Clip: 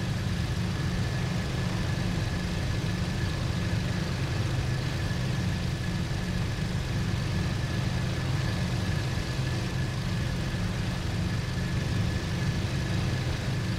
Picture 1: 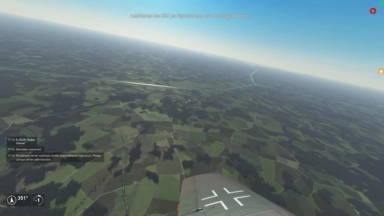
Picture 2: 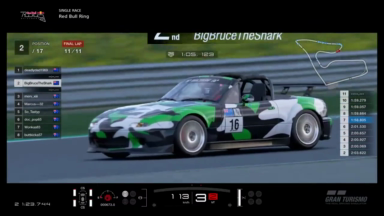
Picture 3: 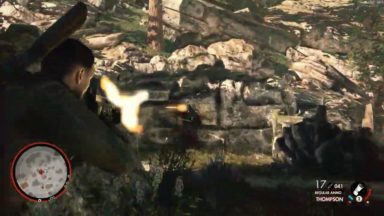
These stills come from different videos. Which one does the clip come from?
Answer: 1